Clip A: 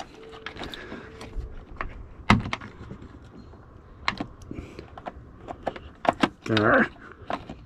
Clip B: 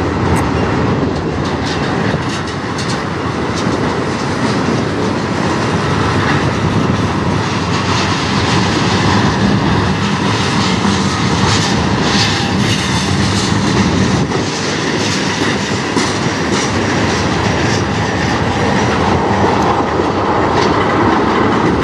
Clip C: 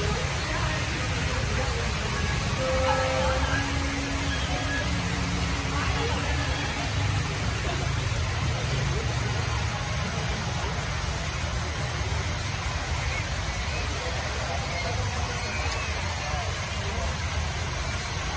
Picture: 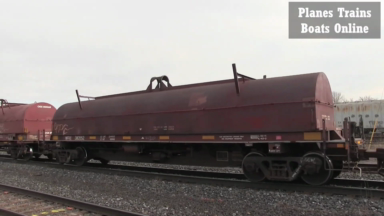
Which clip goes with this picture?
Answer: B